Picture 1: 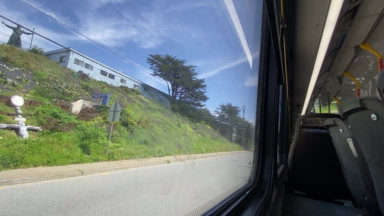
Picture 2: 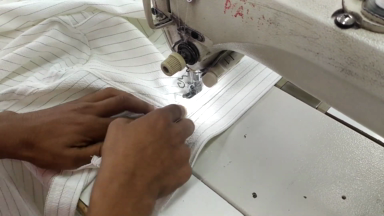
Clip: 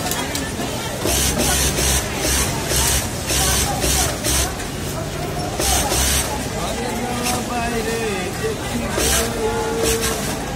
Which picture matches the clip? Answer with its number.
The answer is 2